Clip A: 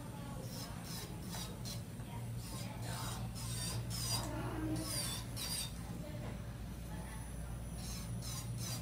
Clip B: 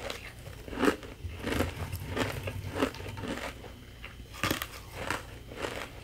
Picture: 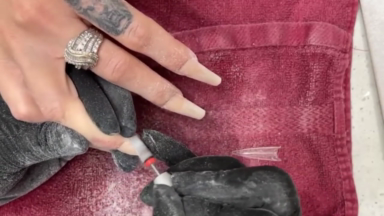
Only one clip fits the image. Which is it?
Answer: A